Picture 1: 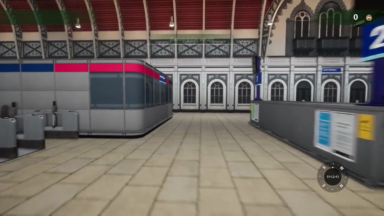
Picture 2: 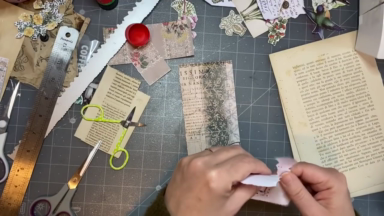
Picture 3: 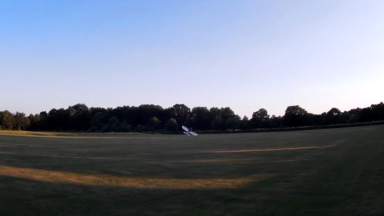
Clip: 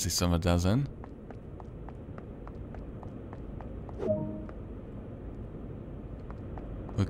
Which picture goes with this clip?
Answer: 1